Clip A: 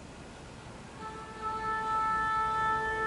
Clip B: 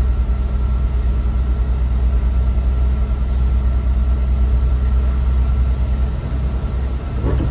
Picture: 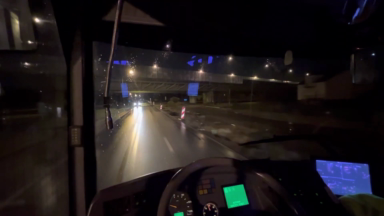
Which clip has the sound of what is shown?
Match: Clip B